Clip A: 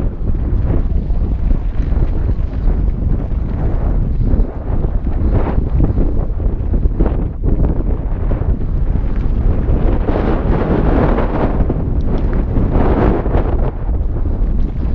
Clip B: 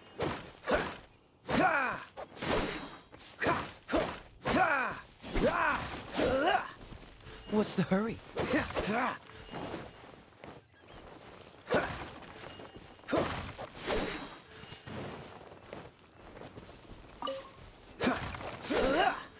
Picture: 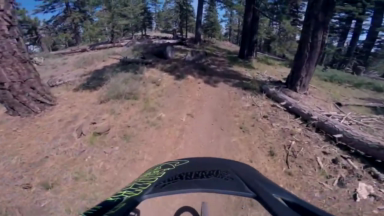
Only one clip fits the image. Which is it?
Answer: A